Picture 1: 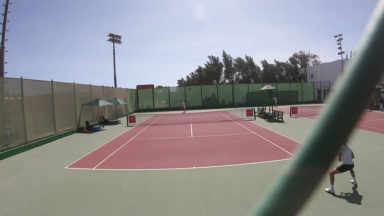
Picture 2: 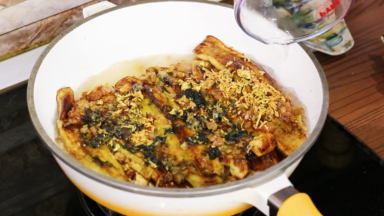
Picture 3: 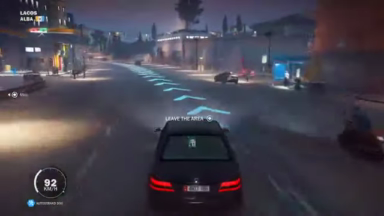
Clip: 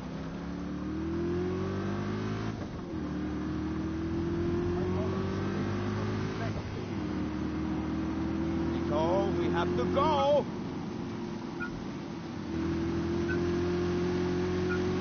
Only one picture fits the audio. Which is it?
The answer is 3